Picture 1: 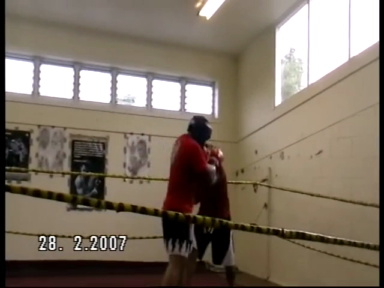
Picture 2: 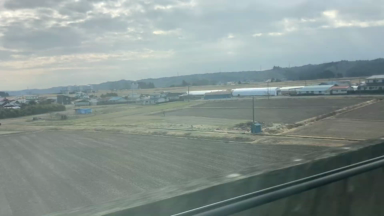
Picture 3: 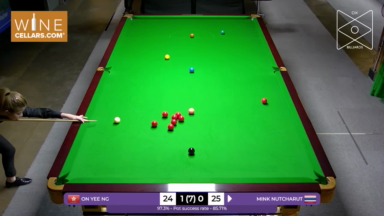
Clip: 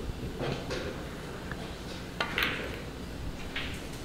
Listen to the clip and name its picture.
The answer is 3